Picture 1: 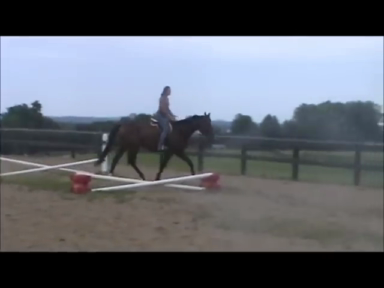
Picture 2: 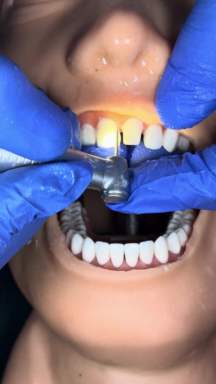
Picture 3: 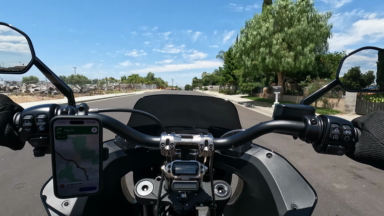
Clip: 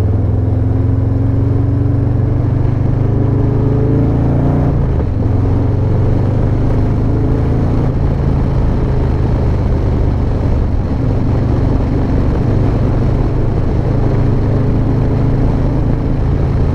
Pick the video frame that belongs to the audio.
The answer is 3